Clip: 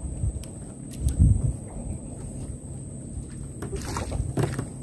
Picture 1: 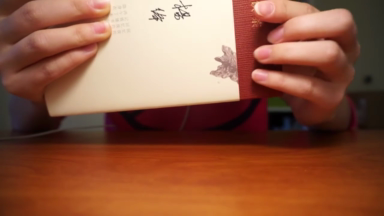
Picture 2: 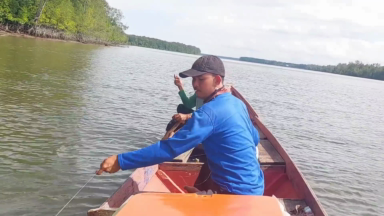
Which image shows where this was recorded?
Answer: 2